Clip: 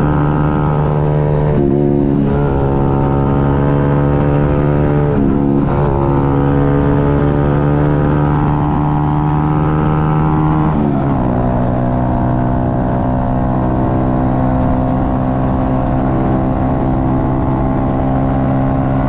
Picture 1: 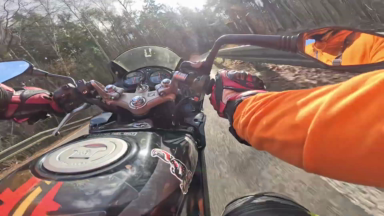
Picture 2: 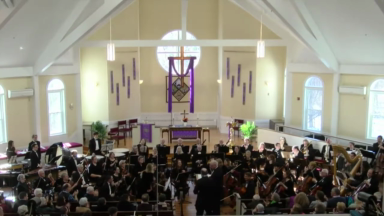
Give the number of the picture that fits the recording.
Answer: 1